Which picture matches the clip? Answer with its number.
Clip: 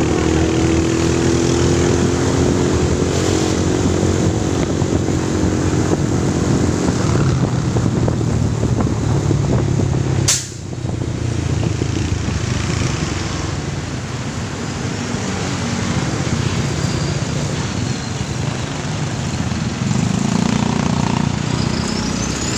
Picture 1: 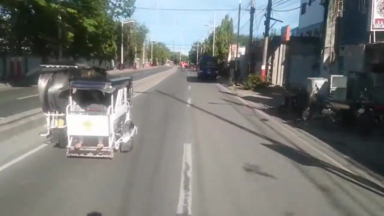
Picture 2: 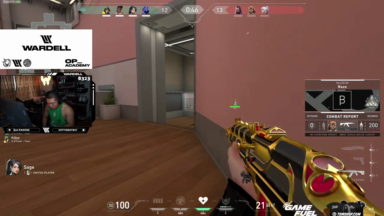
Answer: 1